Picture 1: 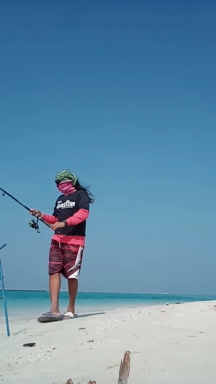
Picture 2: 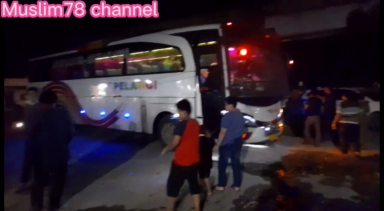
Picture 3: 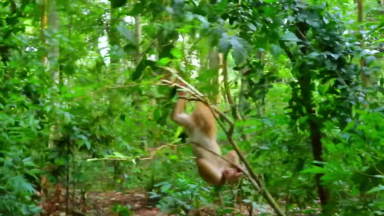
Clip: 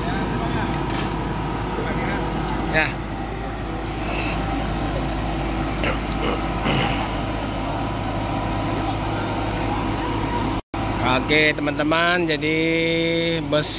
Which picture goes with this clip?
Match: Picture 2